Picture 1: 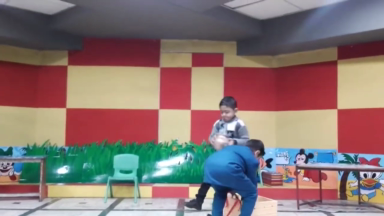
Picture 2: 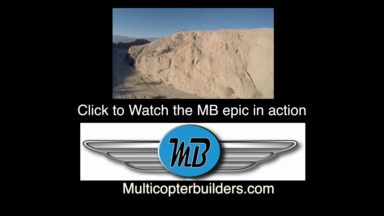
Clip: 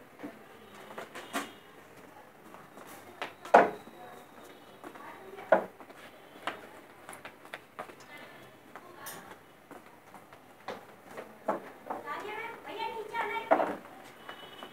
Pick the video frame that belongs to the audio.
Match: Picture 1